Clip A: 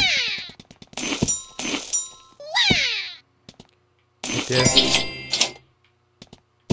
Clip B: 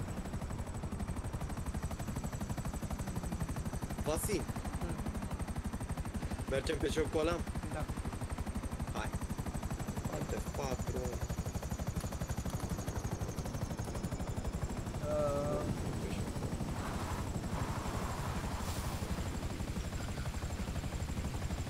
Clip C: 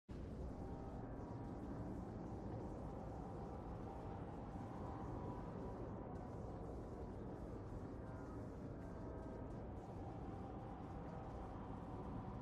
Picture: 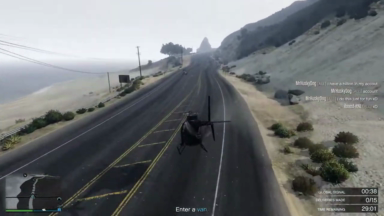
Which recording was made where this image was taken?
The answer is B